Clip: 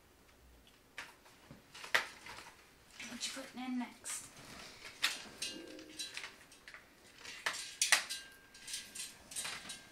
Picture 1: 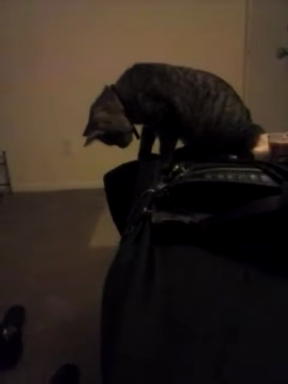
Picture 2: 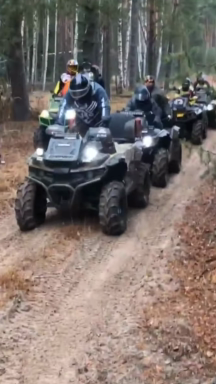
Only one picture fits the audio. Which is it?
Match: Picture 1